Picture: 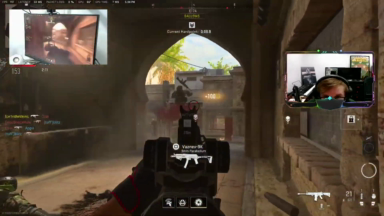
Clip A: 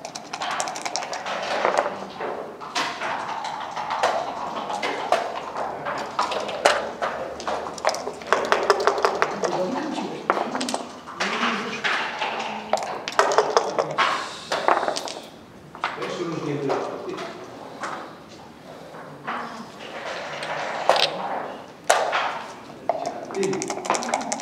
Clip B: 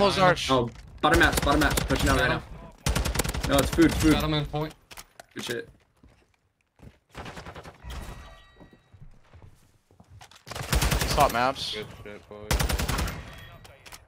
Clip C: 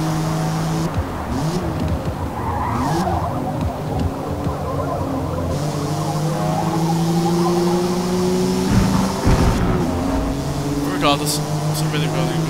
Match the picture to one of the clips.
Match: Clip B